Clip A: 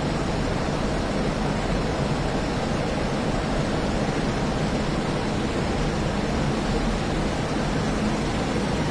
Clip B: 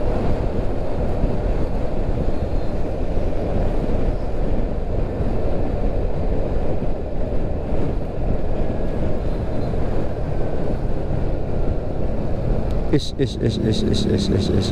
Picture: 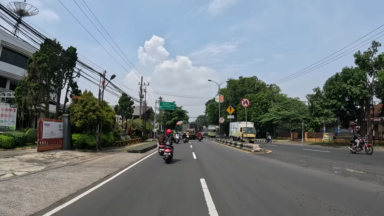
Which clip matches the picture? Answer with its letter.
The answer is B